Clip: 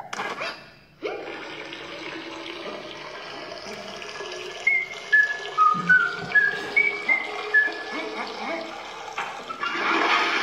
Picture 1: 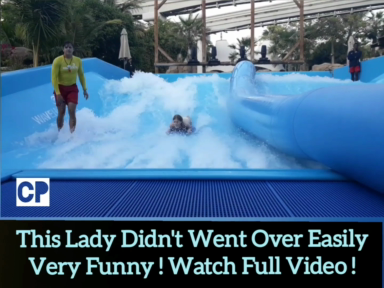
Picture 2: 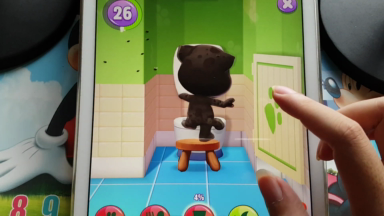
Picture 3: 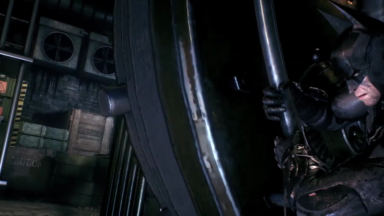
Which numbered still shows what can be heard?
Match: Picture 2